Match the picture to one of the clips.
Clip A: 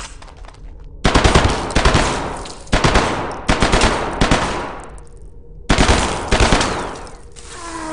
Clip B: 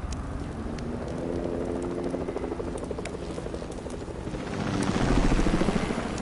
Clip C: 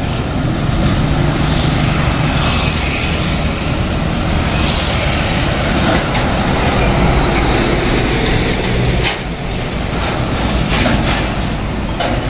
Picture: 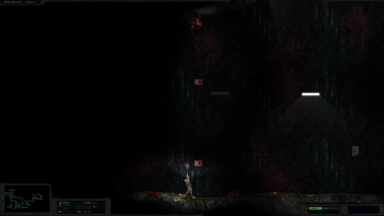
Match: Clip A